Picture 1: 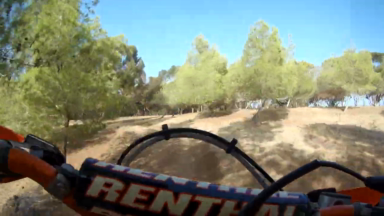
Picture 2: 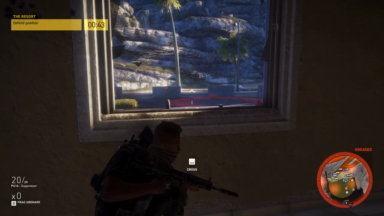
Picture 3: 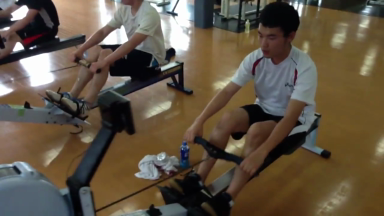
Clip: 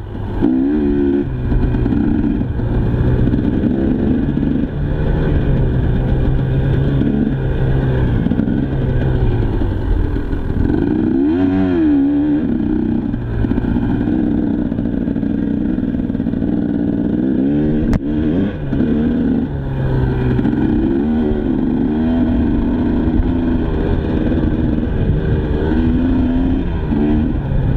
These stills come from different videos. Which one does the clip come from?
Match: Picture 1